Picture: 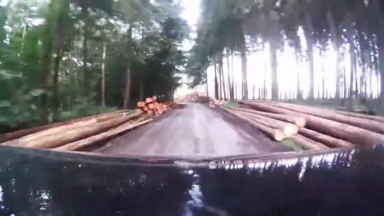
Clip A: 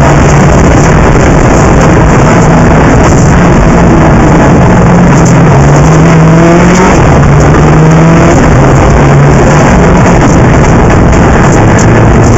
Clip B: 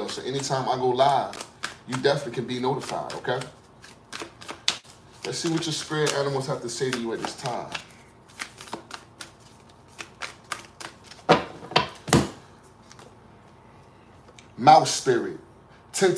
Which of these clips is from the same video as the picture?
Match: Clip A